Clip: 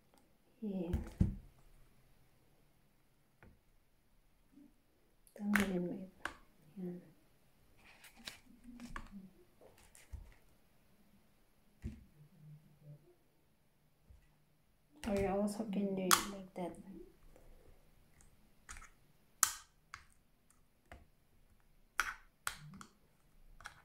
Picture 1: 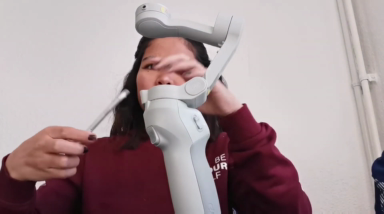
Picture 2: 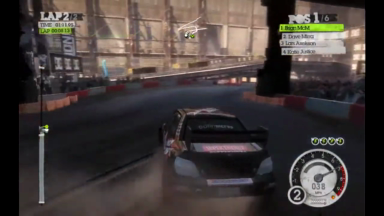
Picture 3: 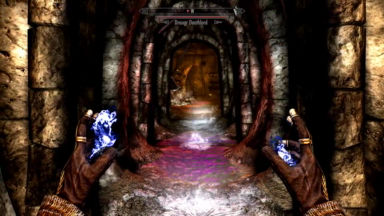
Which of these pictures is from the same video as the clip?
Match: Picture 1